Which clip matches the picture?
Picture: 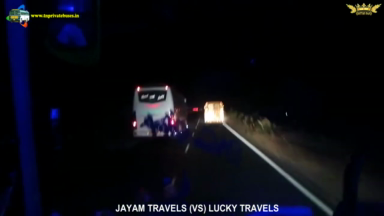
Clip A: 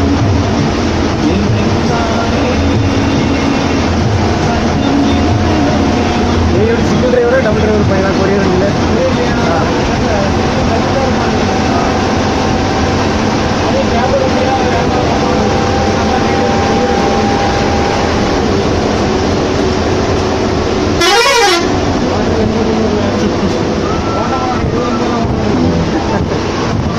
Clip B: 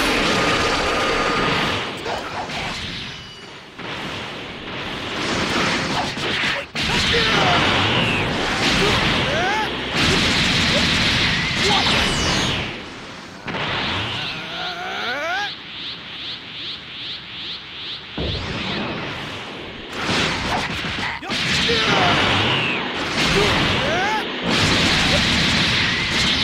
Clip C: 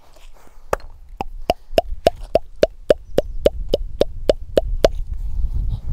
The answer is A